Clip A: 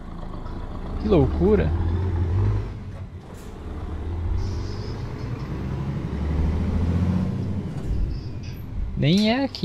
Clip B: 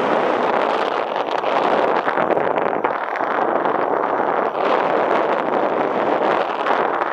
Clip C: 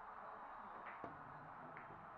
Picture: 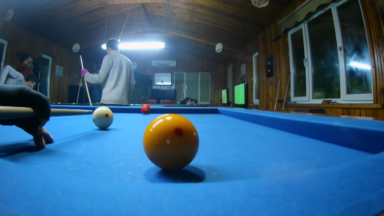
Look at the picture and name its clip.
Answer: C